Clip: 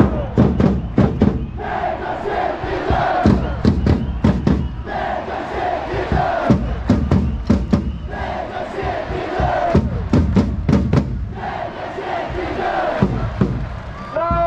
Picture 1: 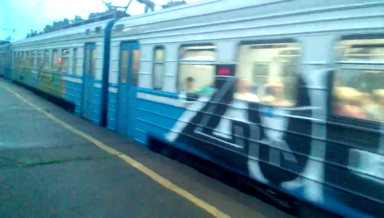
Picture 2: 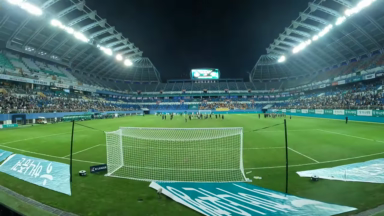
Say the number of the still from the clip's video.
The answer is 2